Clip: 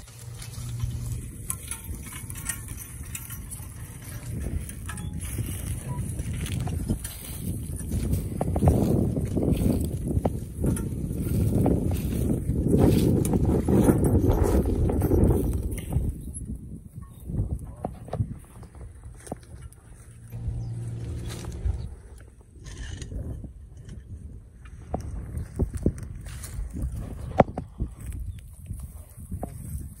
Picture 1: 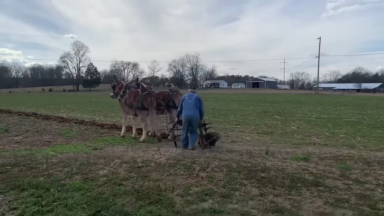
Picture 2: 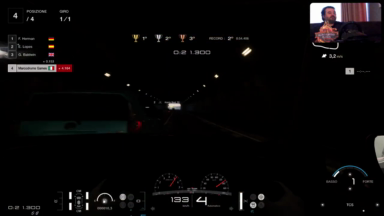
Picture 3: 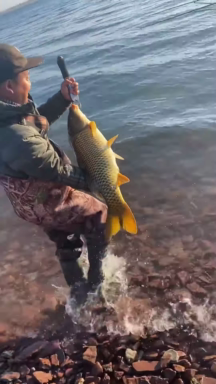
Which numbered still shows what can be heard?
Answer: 1